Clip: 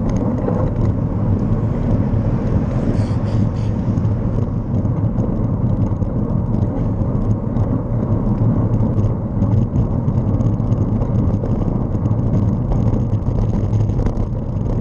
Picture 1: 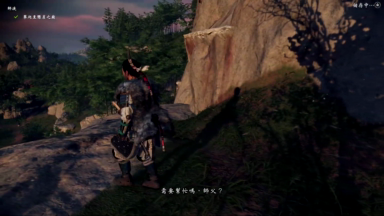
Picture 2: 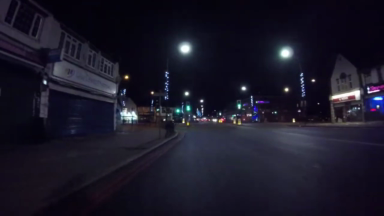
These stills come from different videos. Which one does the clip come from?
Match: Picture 2